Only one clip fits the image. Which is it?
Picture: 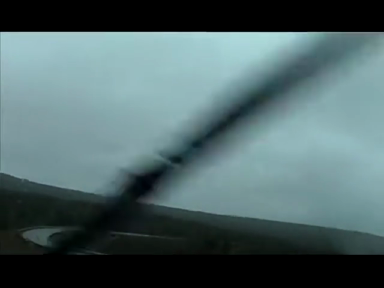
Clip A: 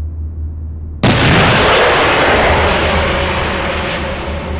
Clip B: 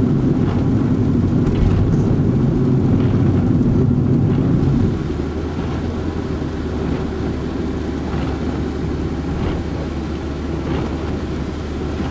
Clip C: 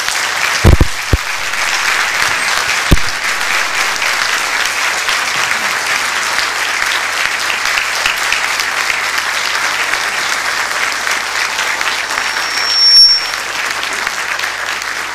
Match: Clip B